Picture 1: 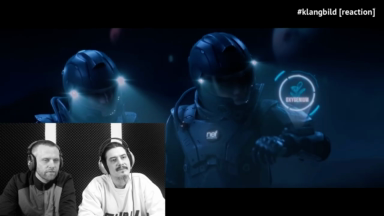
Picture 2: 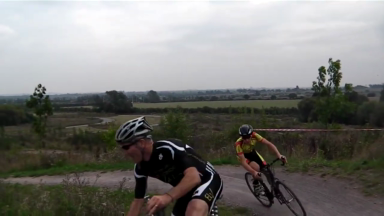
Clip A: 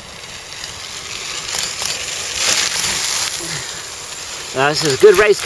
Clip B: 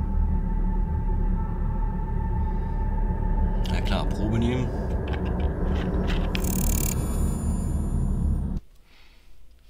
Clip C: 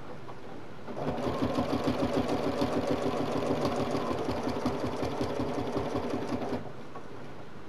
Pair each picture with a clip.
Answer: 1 B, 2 A